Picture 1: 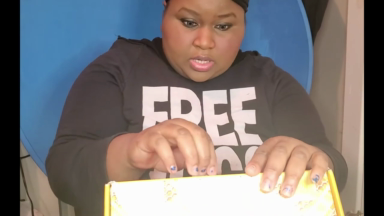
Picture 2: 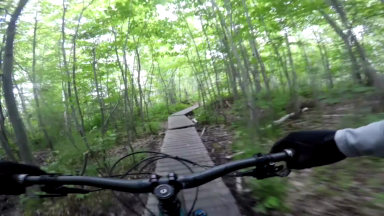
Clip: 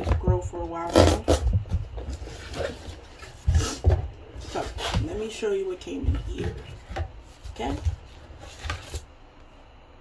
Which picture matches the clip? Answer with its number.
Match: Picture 1